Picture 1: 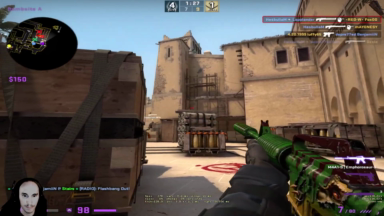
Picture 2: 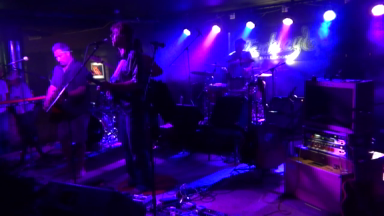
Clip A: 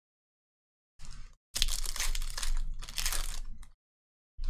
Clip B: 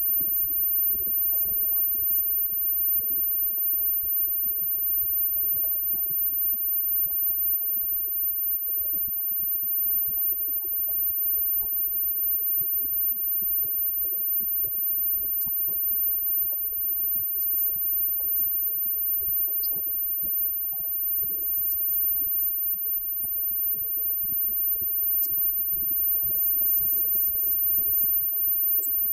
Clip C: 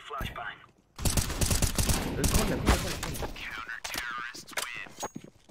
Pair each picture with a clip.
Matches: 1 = C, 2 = B